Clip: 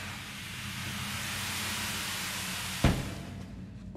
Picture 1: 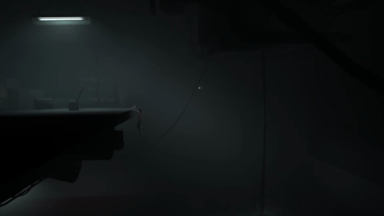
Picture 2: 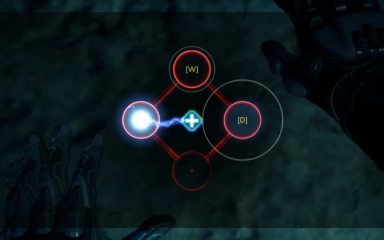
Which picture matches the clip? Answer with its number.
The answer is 1